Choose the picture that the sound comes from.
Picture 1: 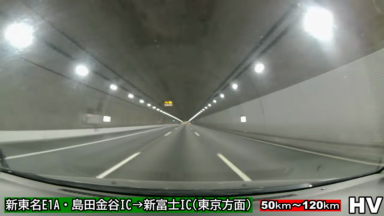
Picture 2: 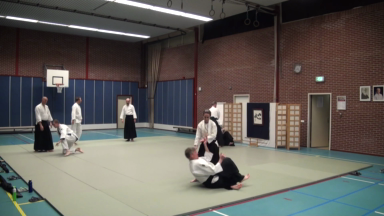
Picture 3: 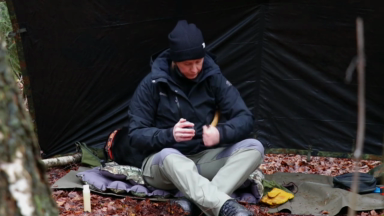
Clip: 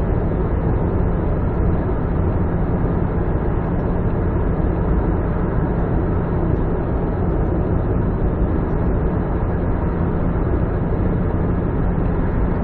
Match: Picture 1